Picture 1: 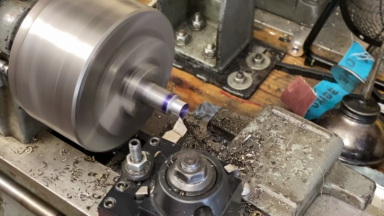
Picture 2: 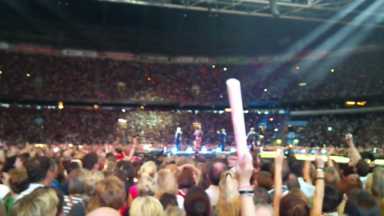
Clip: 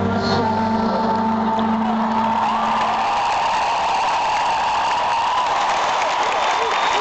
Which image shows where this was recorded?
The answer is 2